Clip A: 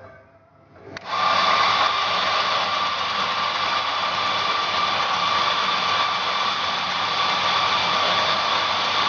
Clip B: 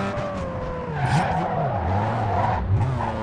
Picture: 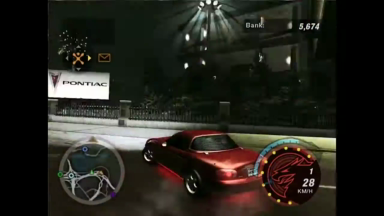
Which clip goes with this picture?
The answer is B